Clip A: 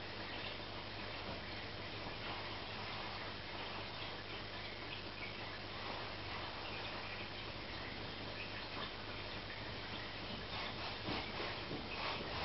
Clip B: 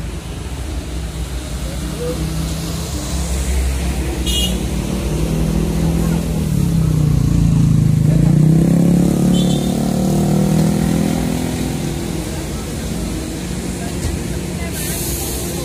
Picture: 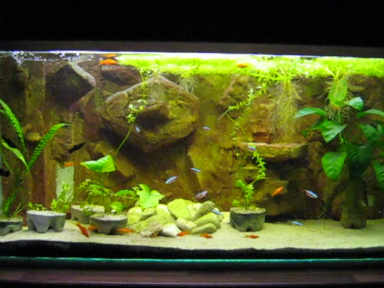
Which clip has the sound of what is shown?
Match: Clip A